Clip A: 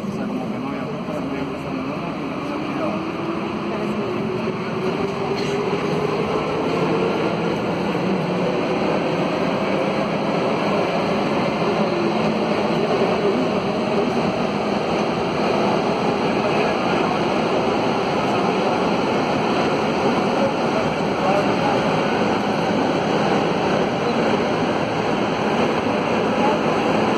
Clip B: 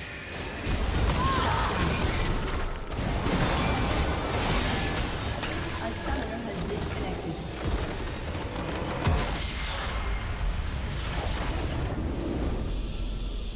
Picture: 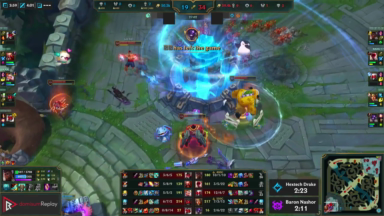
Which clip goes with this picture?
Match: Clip B